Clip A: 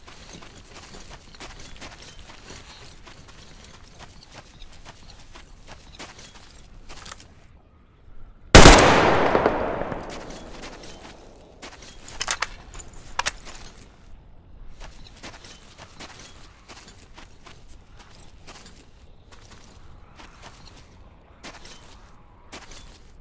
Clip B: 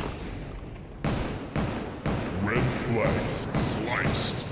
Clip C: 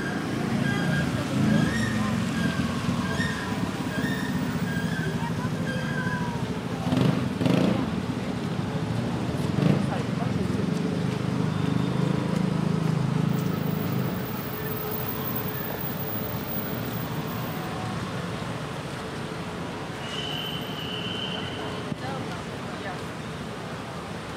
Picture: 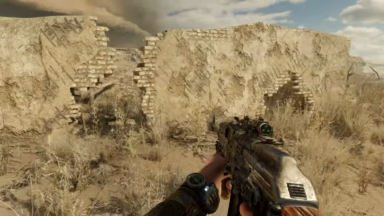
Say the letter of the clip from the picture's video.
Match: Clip A